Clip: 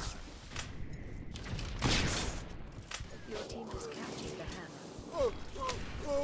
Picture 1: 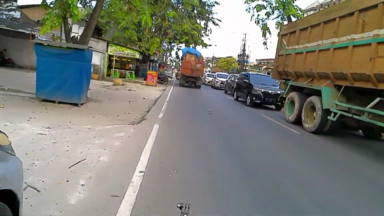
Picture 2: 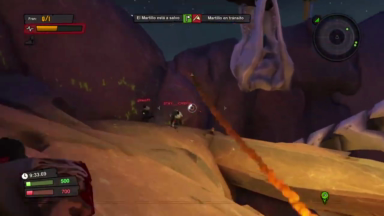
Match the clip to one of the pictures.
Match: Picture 2